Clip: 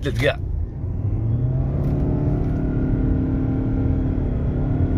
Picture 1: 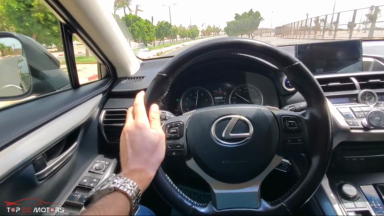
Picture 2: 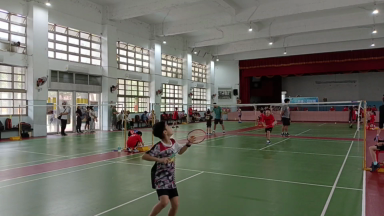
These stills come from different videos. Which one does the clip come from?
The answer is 1